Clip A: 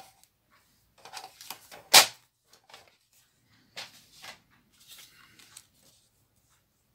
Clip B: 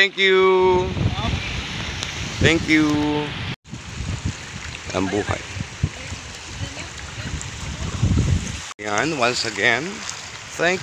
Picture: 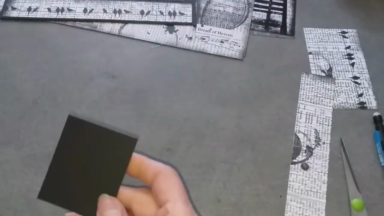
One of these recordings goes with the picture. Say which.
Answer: A